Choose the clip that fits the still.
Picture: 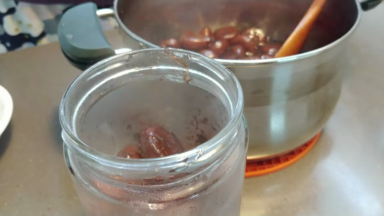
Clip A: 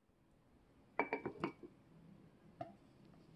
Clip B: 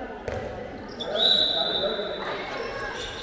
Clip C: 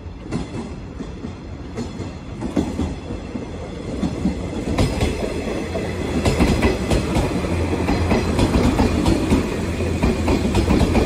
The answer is A